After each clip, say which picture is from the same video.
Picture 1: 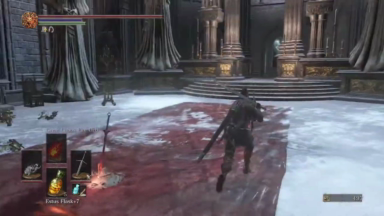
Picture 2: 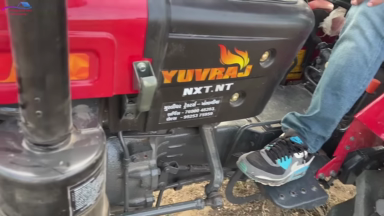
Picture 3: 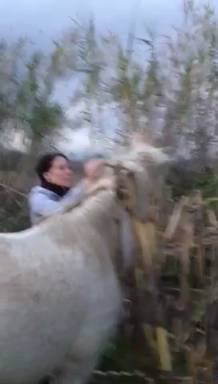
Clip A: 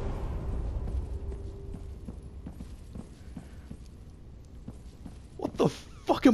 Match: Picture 1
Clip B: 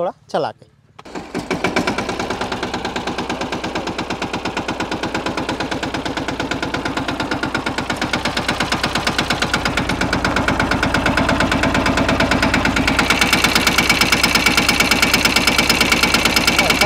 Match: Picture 2